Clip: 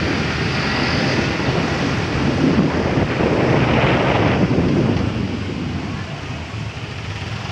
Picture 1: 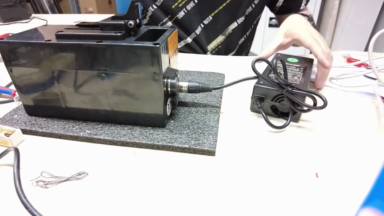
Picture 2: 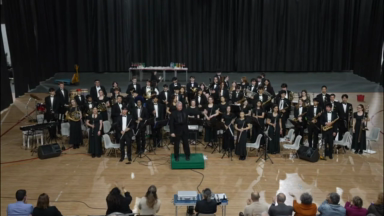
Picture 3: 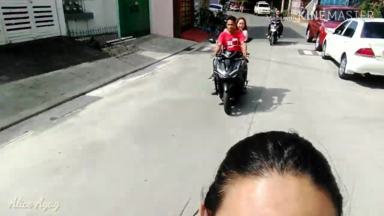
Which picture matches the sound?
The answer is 3